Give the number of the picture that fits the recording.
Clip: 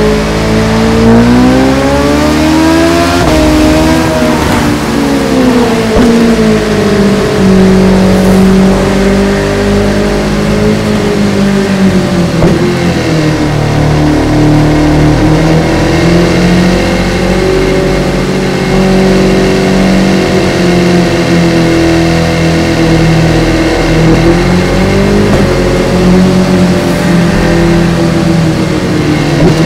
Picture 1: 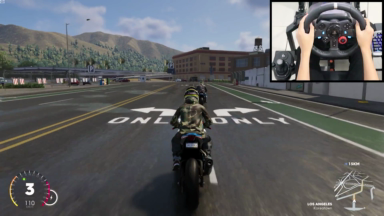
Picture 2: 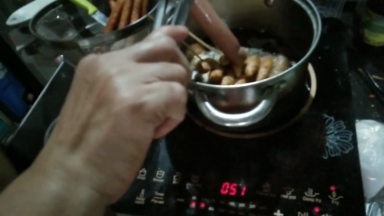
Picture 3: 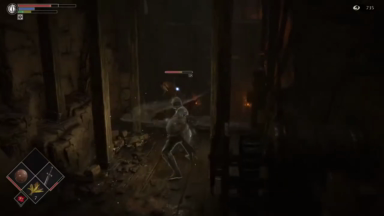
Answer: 1